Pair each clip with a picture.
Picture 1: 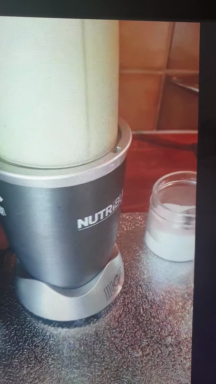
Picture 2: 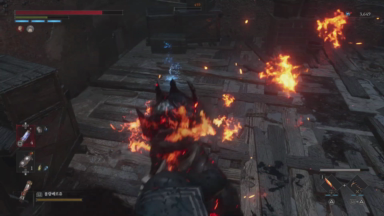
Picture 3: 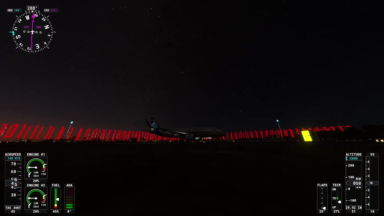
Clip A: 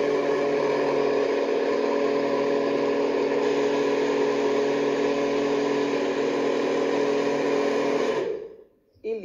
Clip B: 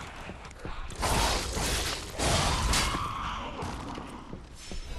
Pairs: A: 1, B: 2